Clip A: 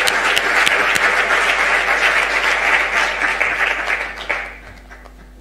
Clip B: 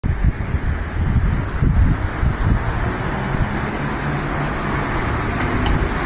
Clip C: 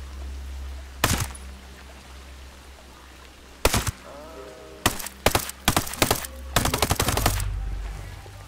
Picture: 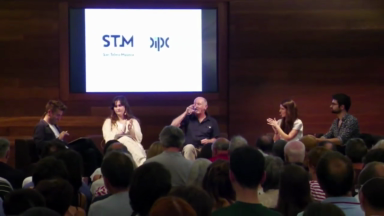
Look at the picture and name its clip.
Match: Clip A